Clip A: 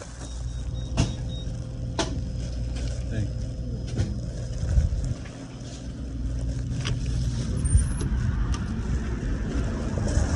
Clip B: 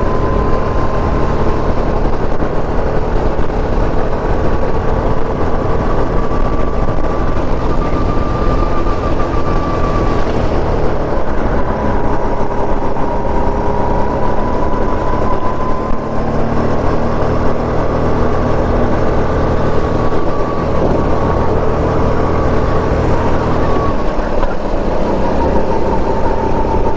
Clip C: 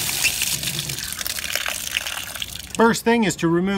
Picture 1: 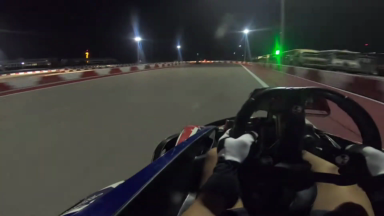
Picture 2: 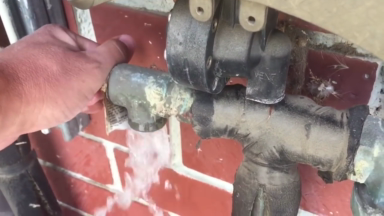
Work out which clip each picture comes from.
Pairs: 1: B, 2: C